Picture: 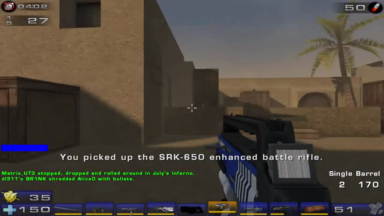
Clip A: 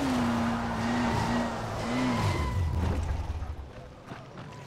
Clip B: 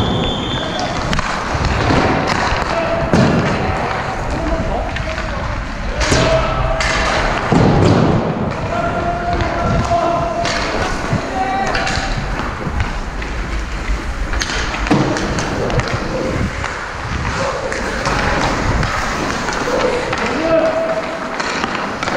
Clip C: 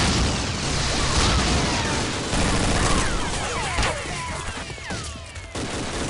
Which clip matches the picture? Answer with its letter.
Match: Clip C